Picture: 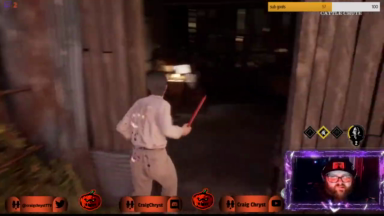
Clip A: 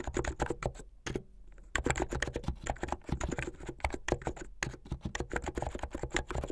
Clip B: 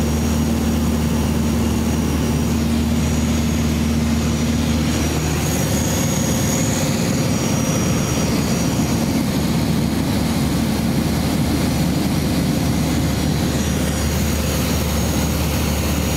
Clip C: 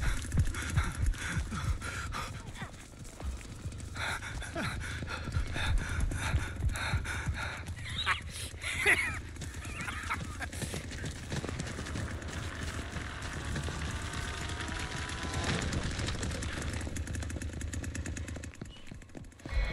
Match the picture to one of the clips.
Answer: C